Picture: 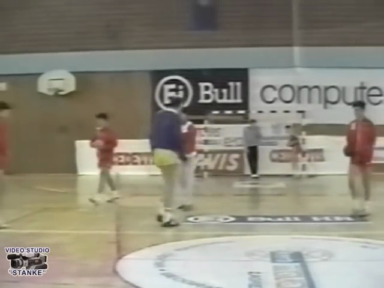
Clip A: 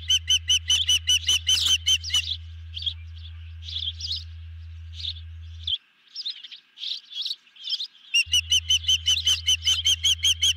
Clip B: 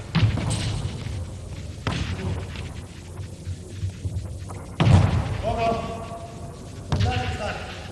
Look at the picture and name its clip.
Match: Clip B